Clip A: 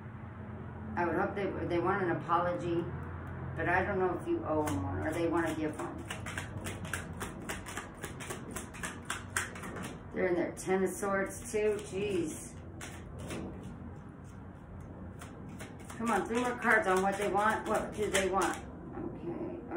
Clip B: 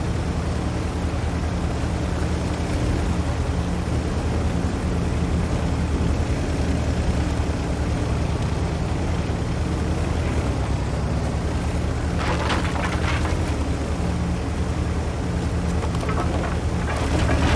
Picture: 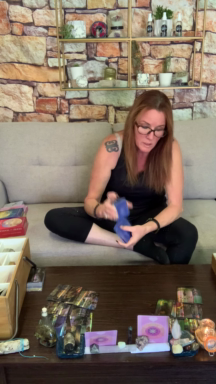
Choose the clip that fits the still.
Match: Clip A